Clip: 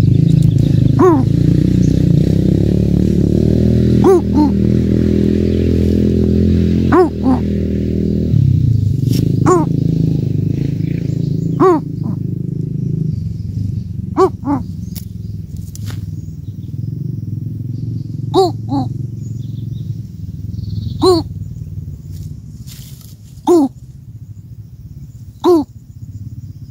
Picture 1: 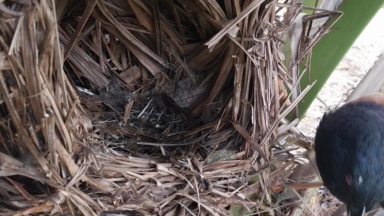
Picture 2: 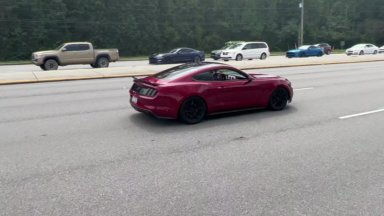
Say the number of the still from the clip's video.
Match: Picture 1